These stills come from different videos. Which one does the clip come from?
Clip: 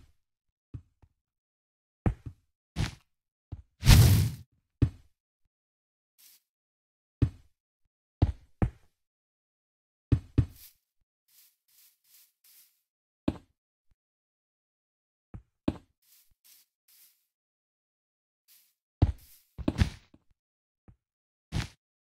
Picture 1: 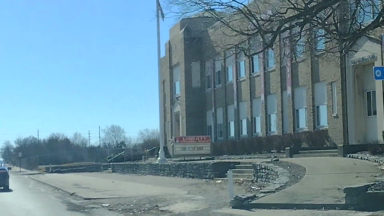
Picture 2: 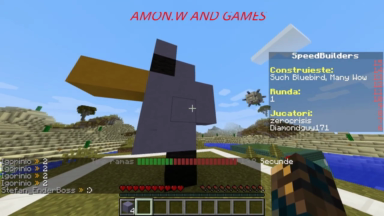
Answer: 2